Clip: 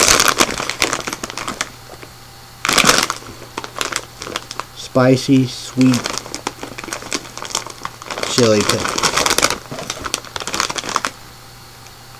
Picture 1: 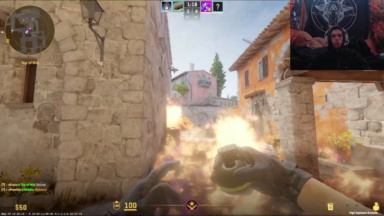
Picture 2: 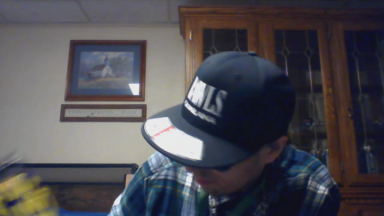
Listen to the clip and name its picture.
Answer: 2